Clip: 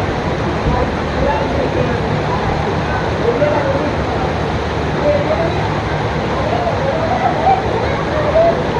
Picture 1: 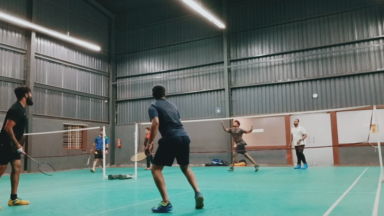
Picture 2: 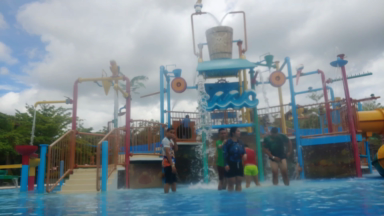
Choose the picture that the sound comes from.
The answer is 2